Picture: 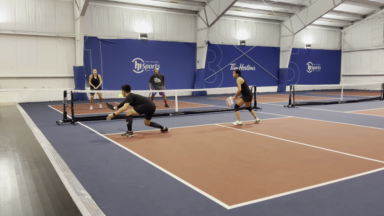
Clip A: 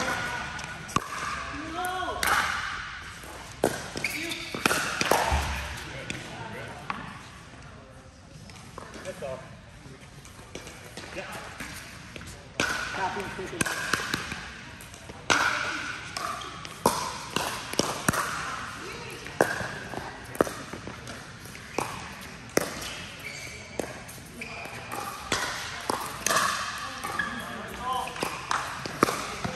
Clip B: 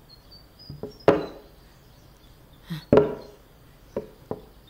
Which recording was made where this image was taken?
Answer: A